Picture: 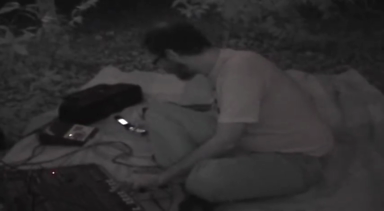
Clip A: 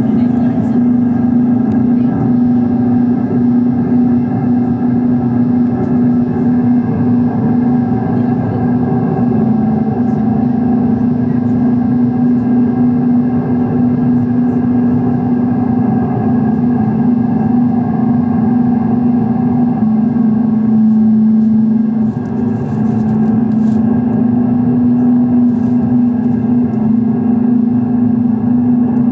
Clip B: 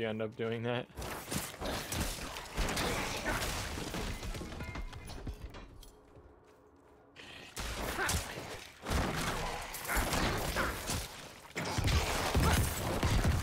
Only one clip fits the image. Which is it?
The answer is A